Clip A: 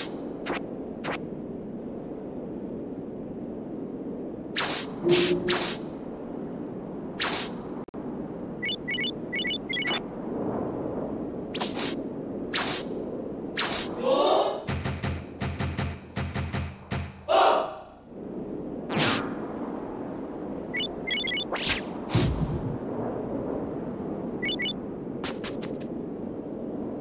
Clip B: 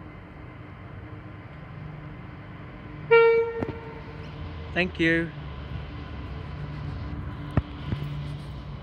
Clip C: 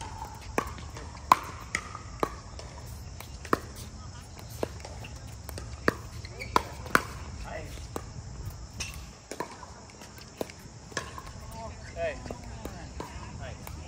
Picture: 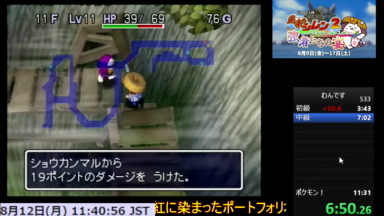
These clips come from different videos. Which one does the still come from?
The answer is A